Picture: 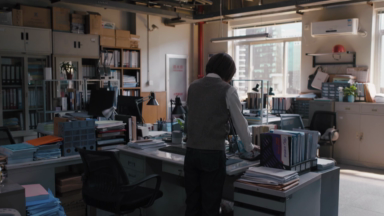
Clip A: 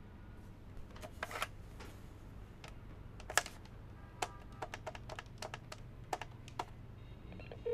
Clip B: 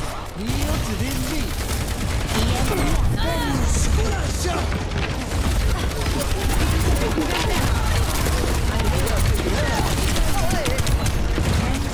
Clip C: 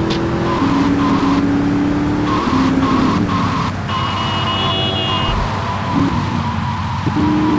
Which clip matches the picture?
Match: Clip A